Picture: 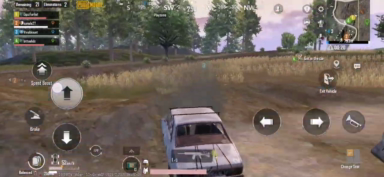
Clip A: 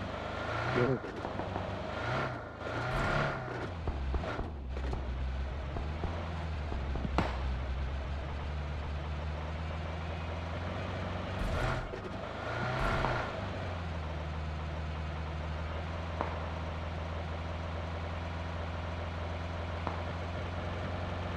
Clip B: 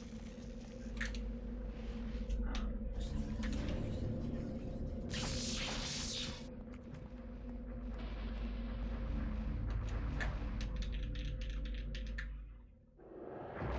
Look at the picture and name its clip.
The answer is A